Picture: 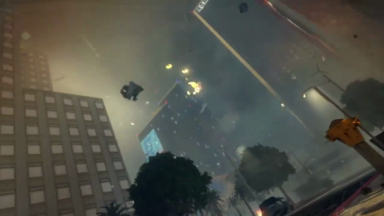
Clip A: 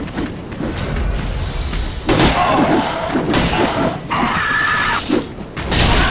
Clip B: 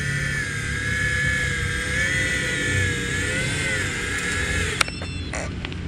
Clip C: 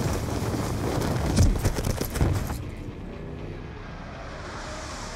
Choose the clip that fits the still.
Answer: C